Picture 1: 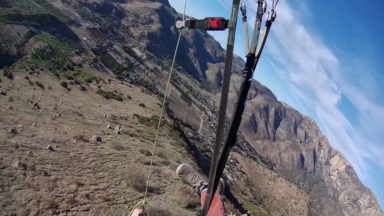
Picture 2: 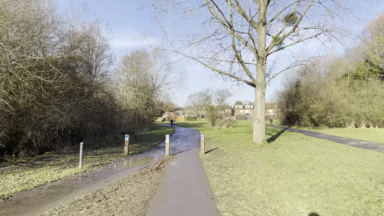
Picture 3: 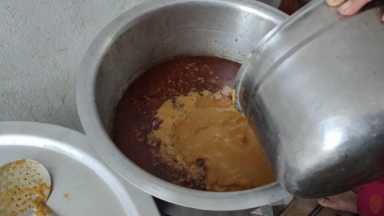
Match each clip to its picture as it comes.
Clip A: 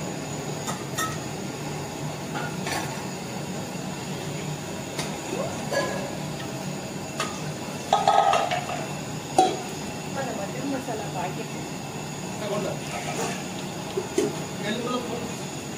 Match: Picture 3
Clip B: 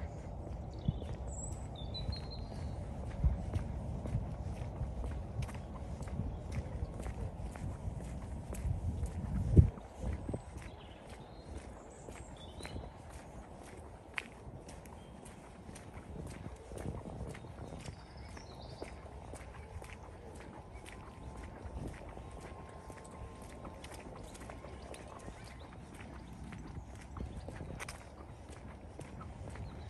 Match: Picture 2